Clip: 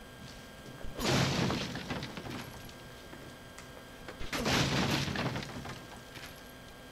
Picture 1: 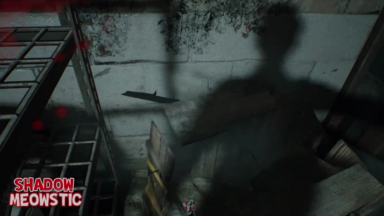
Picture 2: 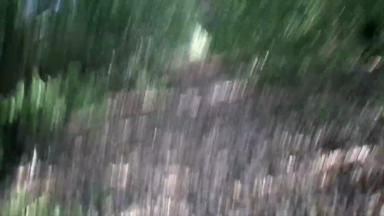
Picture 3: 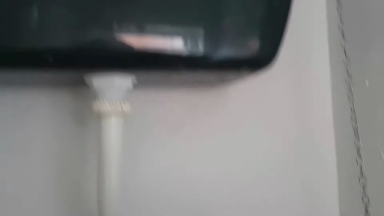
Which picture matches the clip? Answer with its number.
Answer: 1